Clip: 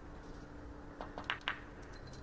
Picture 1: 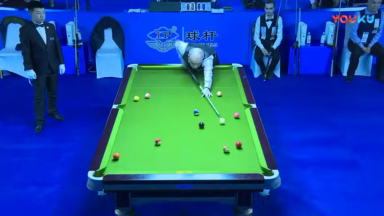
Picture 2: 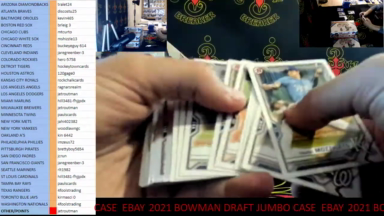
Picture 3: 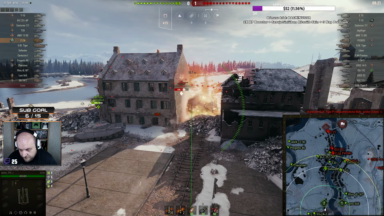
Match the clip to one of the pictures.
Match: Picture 1